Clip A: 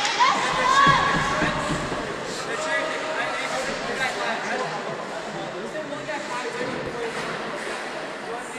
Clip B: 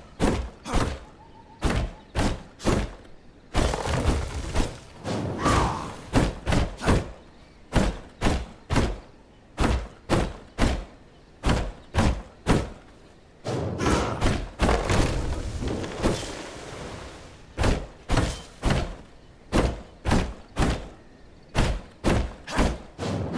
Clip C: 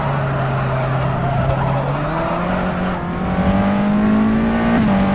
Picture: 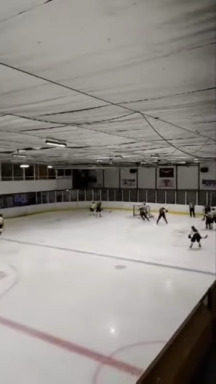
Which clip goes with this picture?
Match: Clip A